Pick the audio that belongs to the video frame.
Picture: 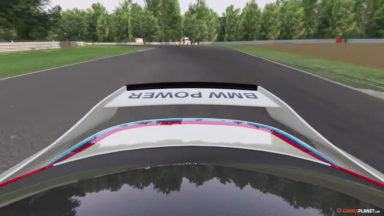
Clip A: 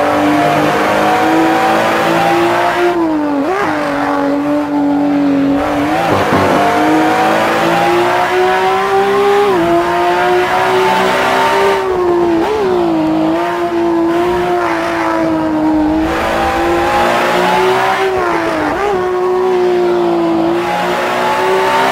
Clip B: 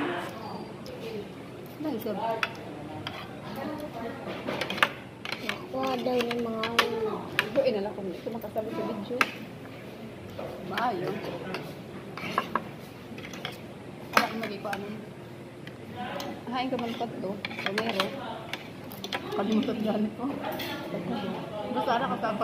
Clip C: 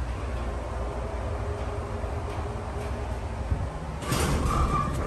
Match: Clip A